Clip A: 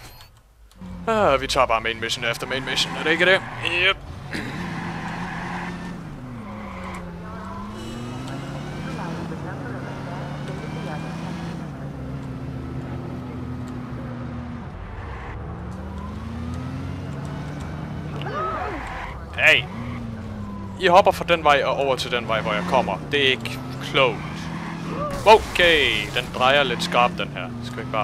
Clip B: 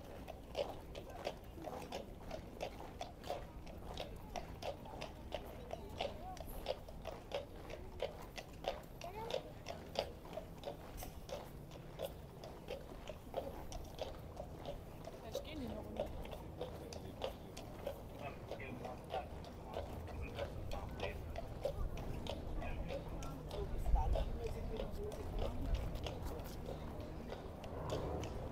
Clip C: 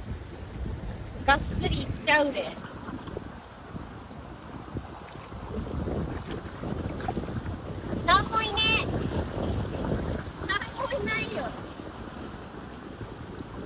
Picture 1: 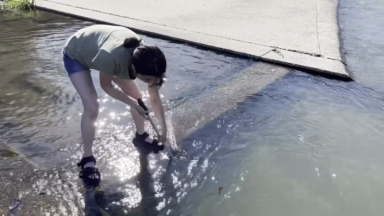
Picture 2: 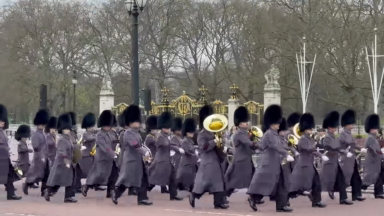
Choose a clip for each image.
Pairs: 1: C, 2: B